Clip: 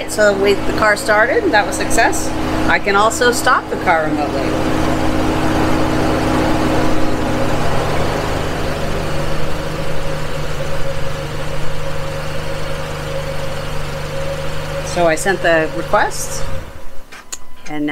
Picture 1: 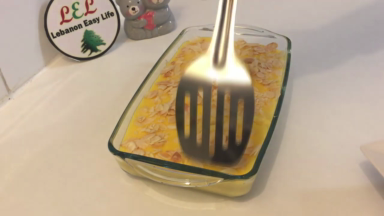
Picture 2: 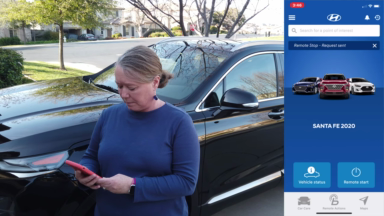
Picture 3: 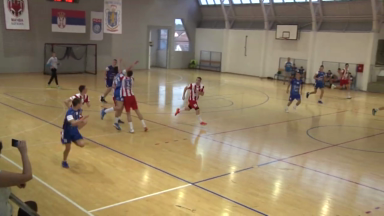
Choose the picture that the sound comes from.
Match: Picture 2